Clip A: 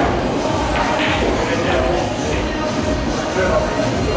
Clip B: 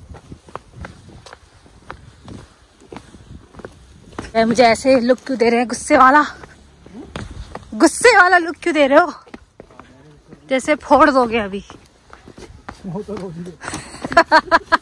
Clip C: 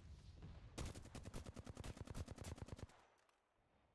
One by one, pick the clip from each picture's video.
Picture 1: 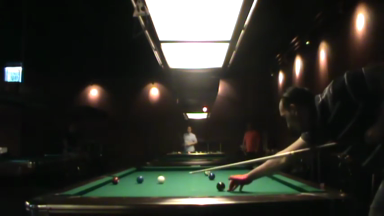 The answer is A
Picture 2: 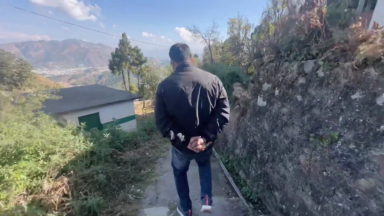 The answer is B